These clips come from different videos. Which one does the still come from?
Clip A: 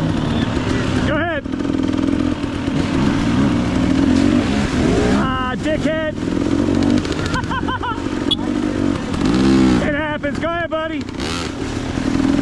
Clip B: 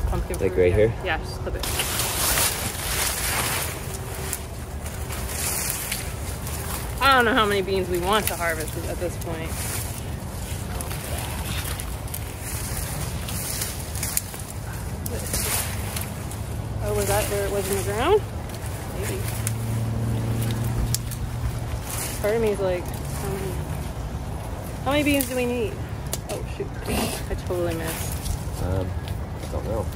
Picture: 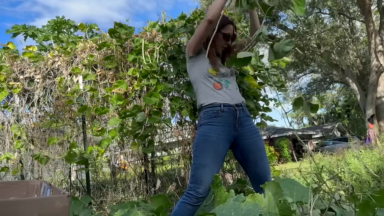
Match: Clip B